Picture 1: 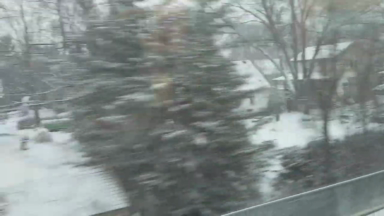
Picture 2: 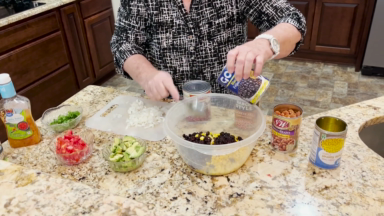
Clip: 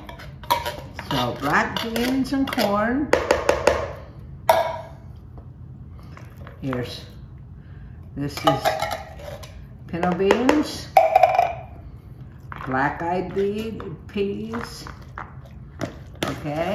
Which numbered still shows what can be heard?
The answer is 2